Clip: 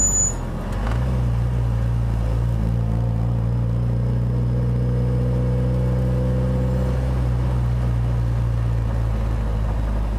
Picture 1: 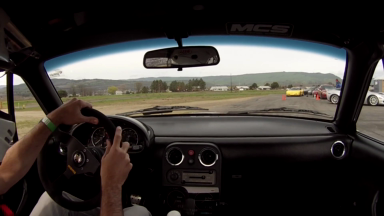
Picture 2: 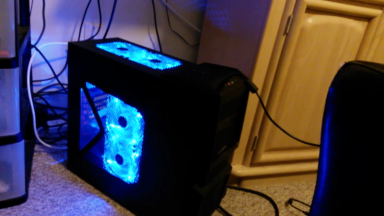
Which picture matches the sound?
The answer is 1